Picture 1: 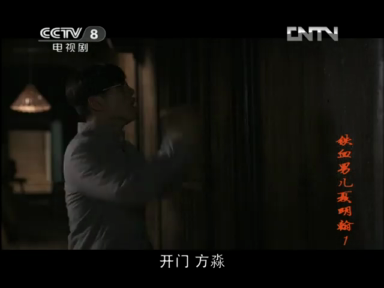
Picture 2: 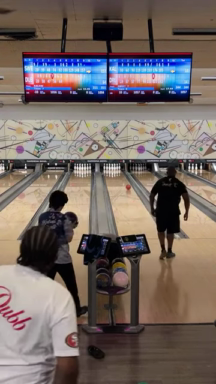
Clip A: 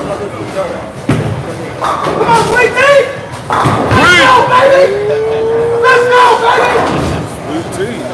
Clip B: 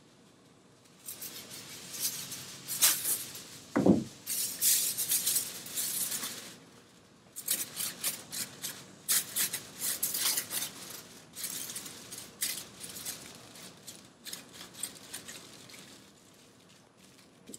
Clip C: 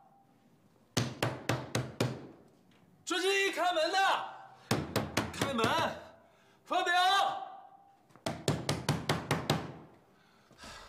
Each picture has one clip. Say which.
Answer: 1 C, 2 A